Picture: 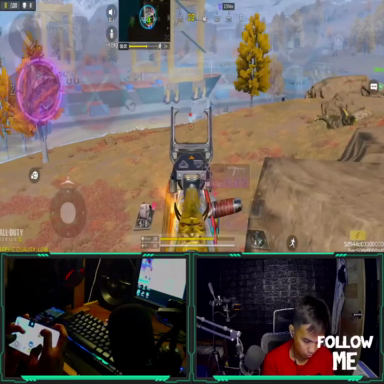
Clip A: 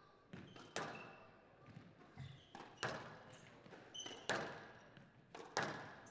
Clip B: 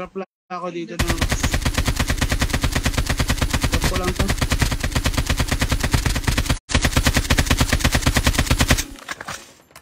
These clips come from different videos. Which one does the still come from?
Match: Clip B